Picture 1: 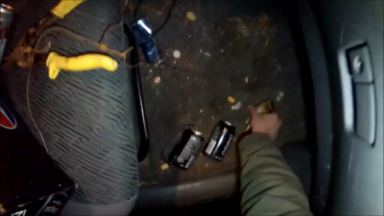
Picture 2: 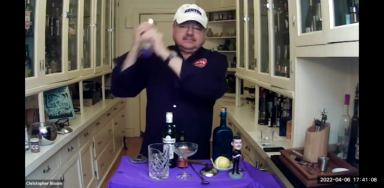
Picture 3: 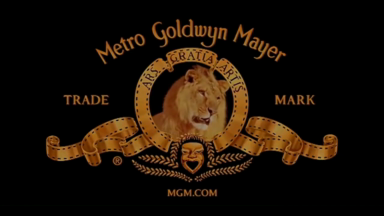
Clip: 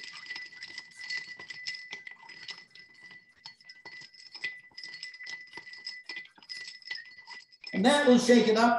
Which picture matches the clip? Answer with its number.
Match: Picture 2